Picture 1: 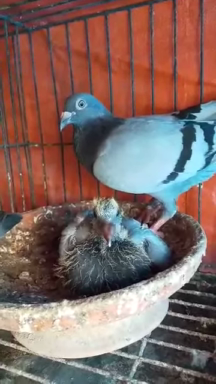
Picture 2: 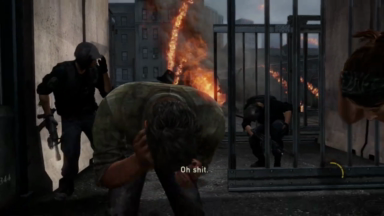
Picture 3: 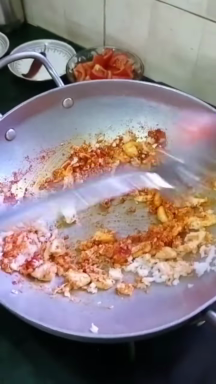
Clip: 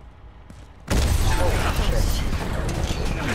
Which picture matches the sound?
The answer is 2